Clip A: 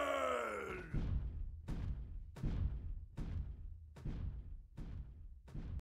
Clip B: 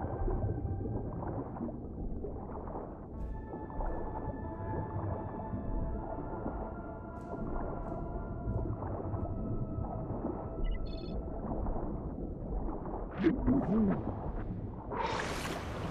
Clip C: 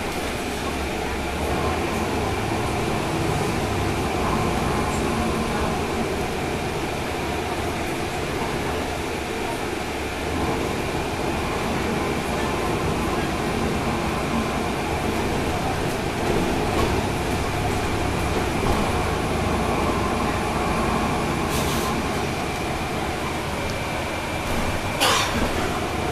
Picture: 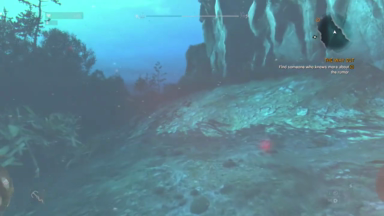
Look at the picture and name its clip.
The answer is B